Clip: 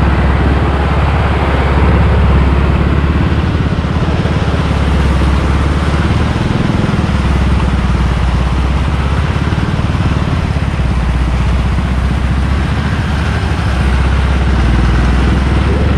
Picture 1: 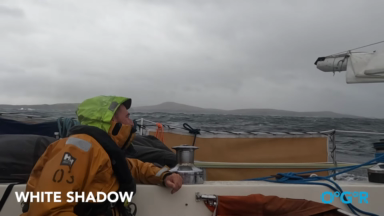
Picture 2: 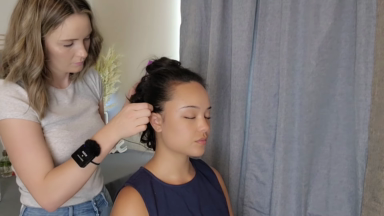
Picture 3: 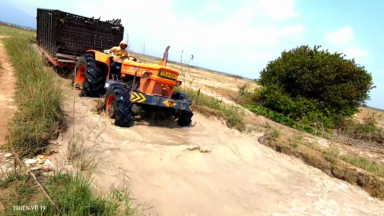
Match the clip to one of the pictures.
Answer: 3